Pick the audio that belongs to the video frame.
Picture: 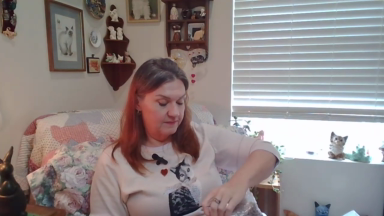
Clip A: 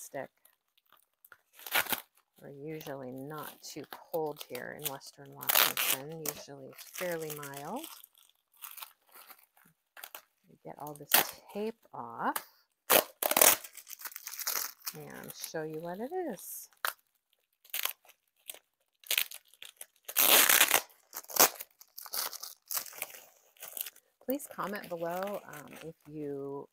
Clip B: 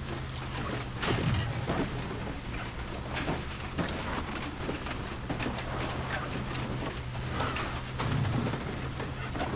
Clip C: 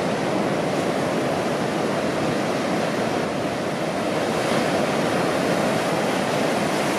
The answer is A